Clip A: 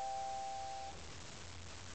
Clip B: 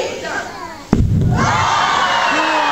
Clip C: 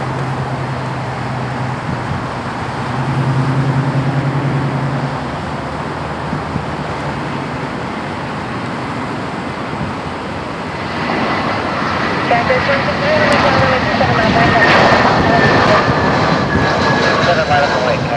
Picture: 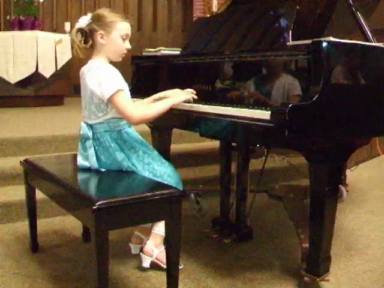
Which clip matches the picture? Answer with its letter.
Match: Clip A